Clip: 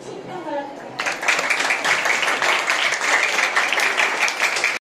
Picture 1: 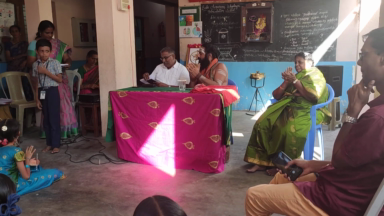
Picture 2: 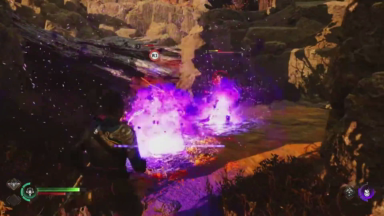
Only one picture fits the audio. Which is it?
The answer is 1